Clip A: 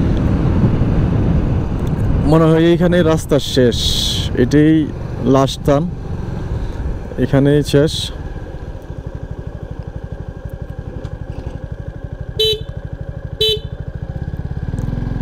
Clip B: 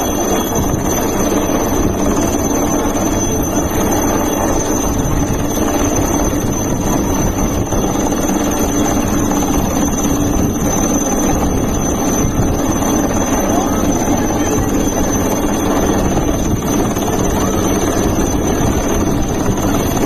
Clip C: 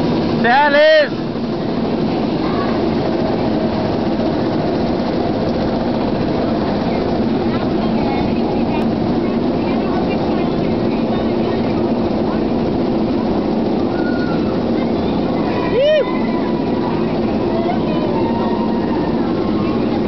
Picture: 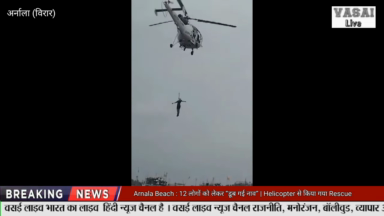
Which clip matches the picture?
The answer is B